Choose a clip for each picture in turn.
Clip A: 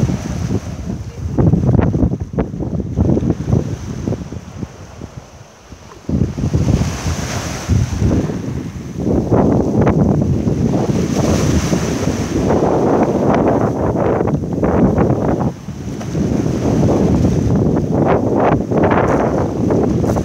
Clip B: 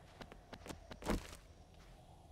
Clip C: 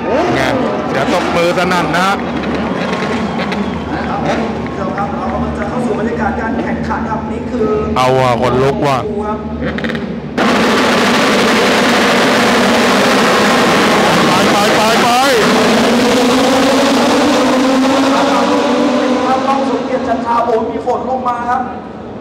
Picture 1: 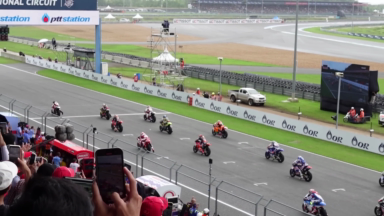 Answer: C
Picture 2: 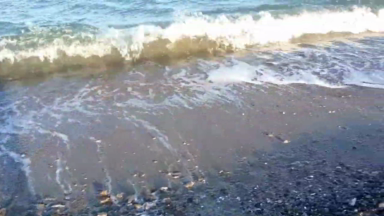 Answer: A